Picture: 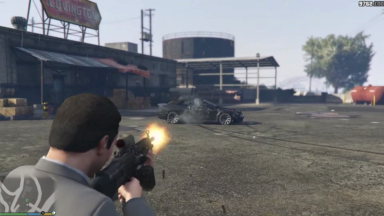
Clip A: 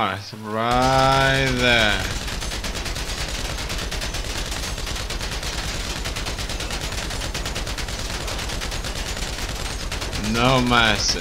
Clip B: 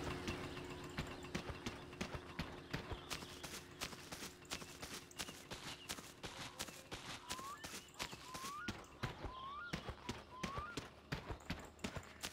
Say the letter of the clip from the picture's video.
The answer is A